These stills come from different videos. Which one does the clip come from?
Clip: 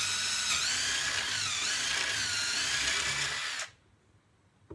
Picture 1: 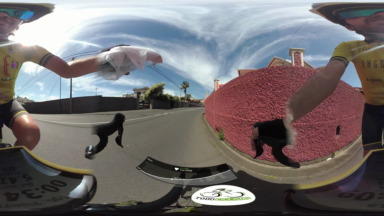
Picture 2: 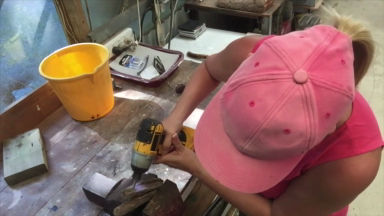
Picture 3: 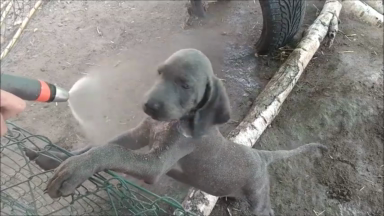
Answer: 2